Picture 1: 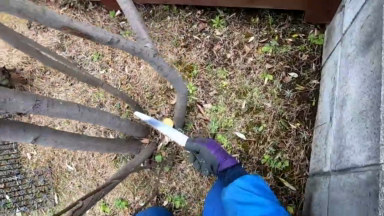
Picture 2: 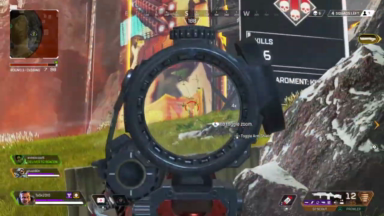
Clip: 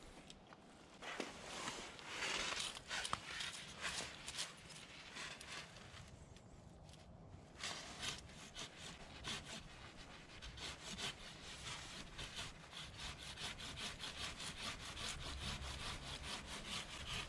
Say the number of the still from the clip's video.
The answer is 1